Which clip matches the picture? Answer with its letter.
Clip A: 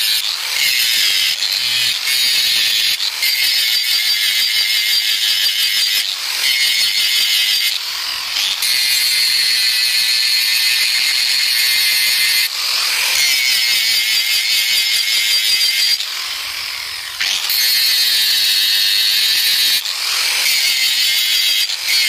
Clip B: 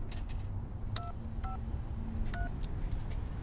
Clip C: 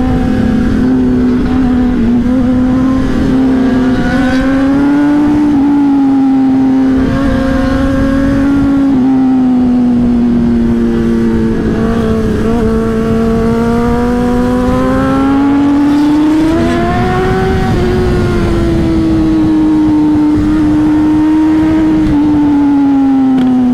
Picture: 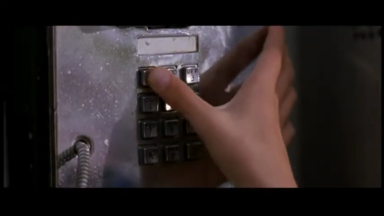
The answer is B